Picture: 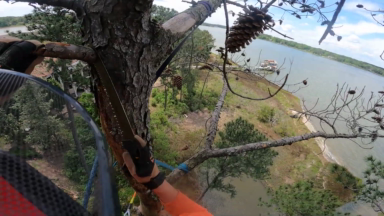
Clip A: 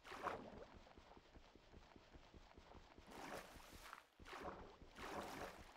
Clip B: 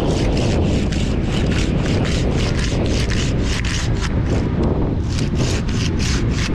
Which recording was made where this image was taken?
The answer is B